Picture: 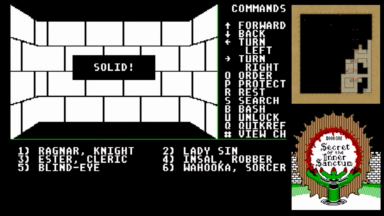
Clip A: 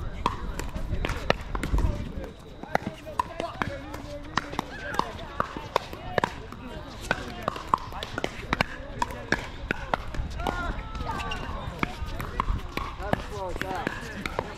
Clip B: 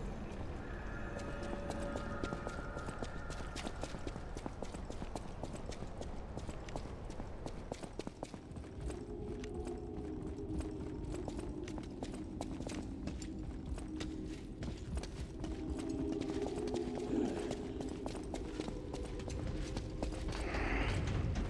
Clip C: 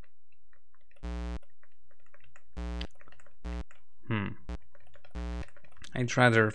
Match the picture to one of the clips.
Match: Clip C